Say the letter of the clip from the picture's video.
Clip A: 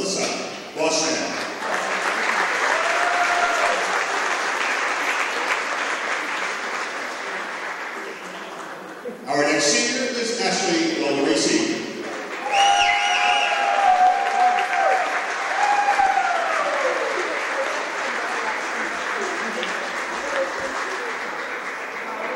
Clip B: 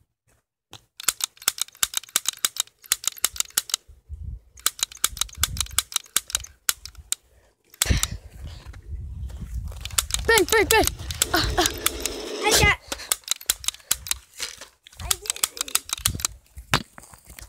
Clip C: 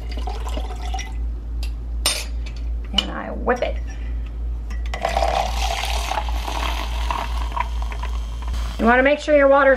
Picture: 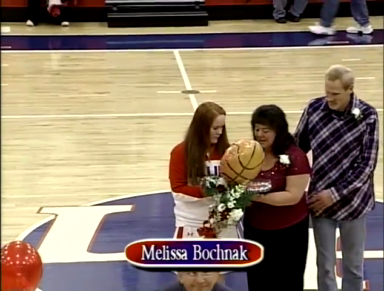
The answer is A